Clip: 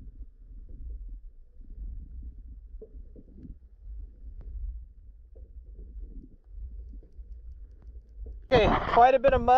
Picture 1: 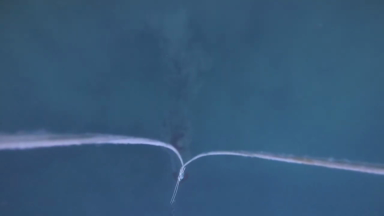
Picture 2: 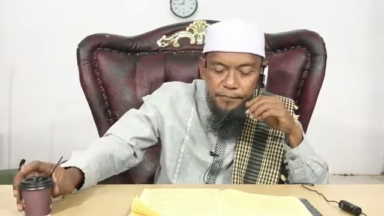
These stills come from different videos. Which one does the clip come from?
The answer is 1